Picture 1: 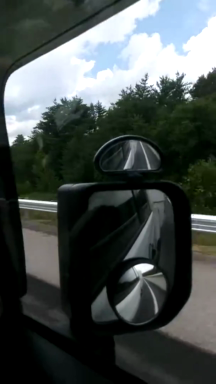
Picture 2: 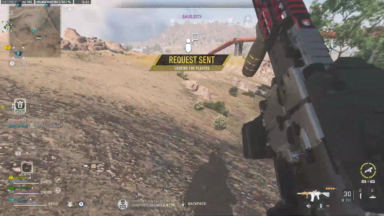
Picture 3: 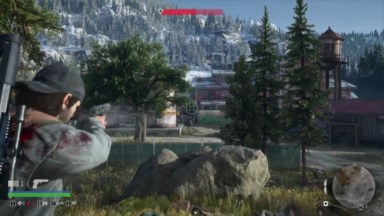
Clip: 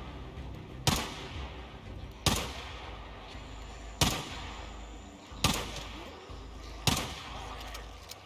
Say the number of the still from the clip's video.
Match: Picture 3